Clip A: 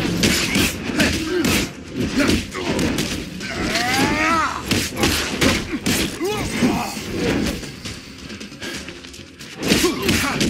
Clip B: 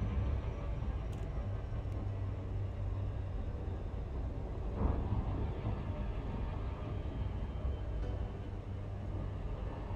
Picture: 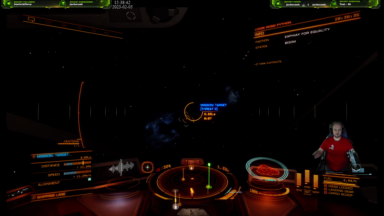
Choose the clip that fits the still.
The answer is B